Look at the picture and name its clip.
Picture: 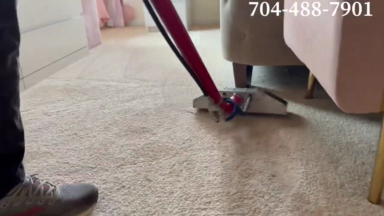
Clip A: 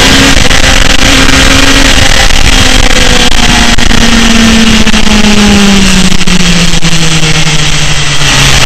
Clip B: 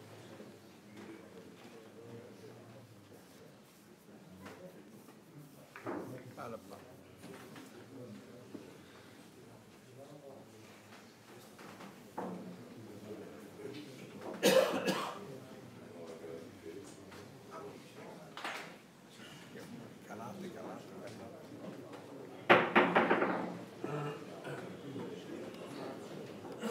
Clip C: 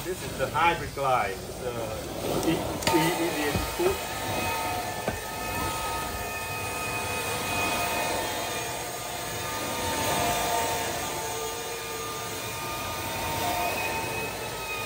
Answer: C